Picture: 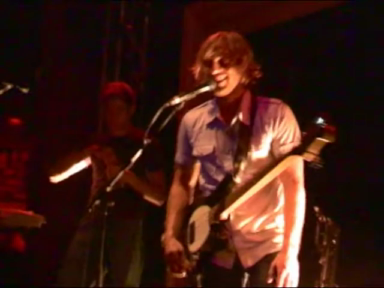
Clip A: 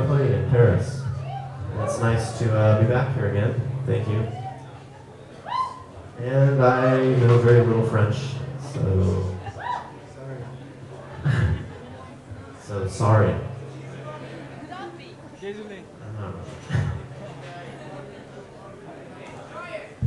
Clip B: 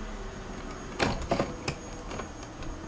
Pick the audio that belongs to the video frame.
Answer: A